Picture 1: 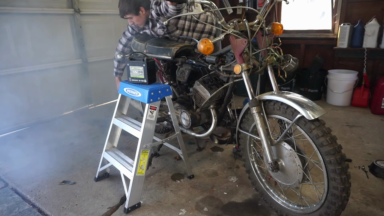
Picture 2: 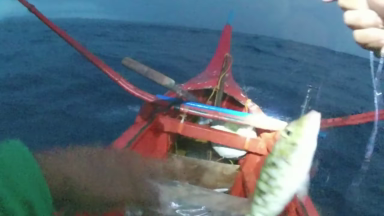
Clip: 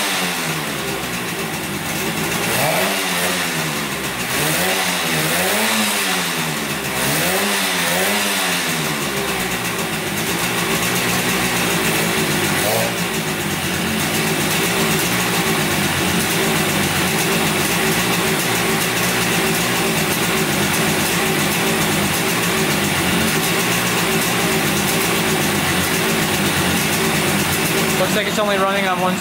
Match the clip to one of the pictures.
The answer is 1